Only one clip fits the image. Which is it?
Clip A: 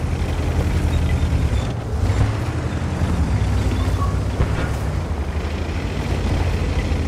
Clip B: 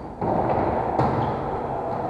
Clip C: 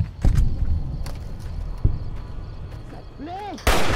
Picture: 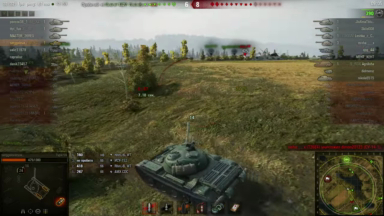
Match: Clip A